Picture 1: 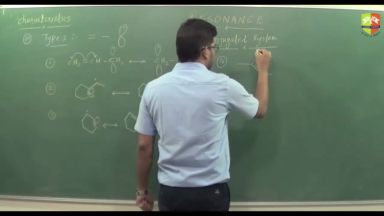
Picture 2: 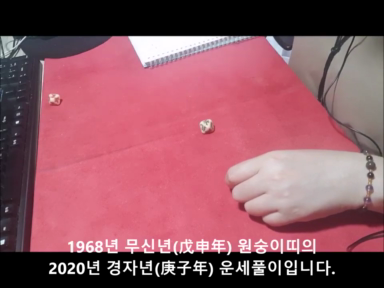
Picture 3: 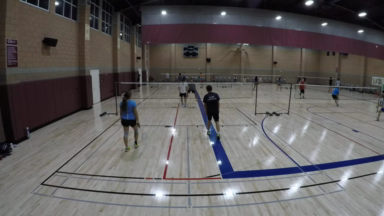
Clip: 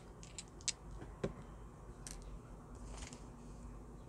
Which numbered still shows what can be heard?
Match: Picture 2